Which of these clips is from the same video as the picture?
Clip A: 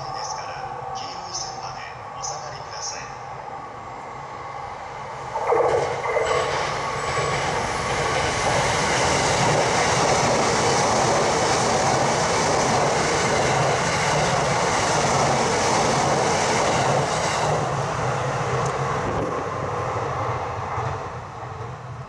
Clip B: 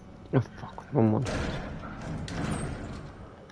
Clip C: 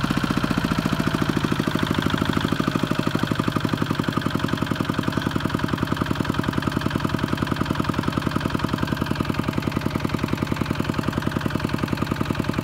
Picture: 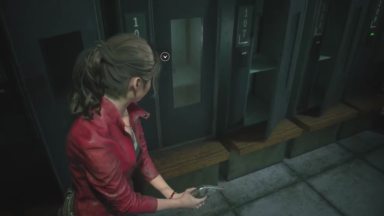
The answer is B